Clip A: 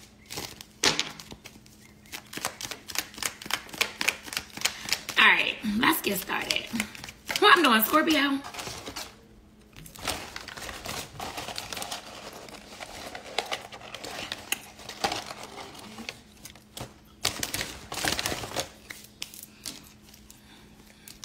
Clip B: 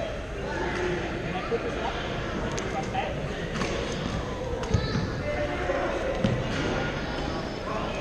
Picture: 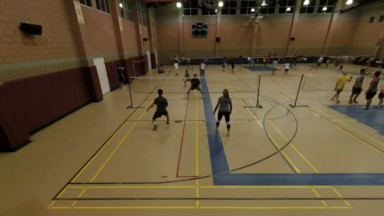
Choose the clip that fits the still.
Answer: B